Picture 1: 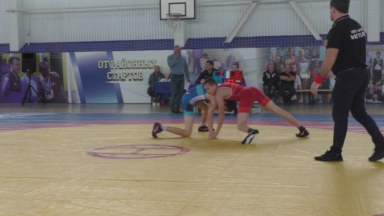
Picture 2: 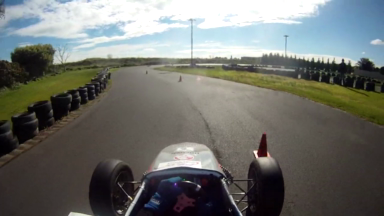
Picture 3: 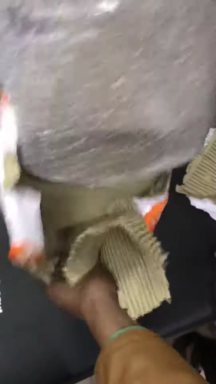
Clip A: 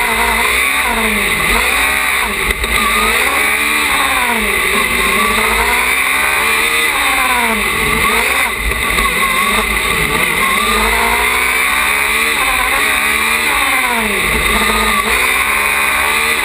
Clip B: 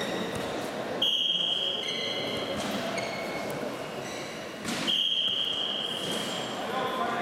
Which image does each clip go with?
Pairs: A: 2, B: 1